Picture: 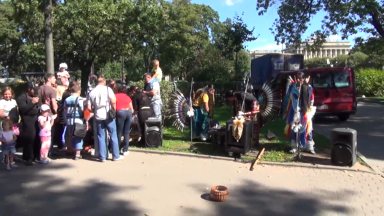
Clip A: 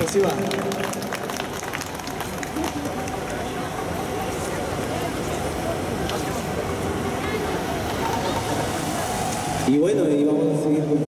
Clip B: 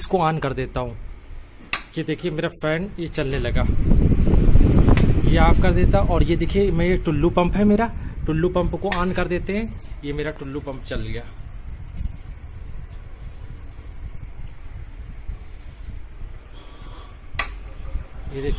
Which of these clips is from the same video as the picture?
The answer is A